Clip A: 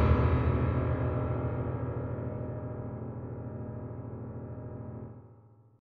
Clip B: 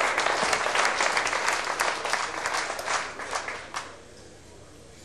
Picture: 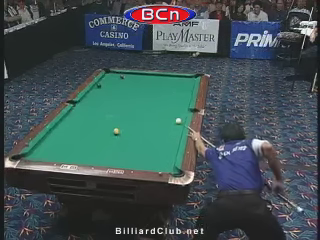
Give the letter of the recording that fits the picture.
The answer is B